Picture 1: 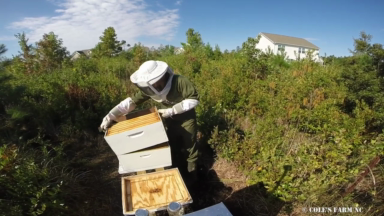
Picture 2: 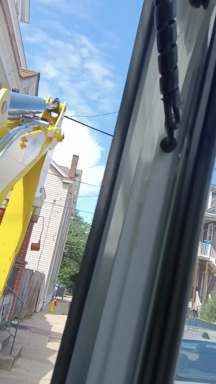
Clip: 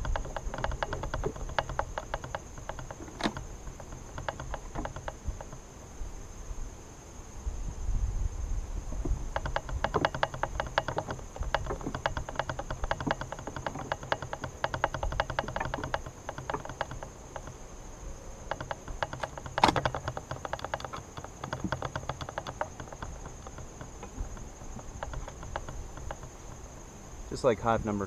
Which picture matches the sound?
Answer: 1